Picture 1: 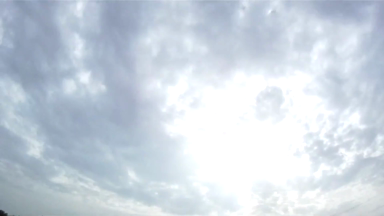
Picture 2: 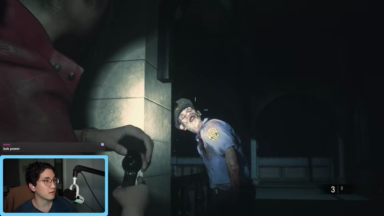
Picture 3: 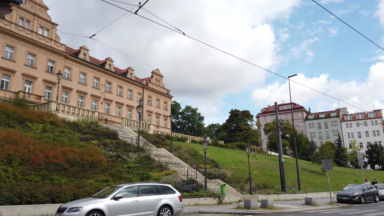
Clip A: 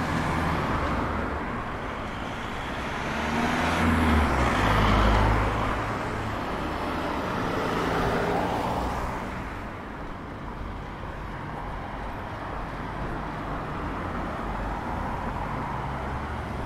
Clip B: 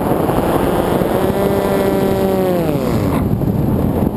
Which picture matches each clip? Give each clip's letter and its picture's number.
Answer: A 3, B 1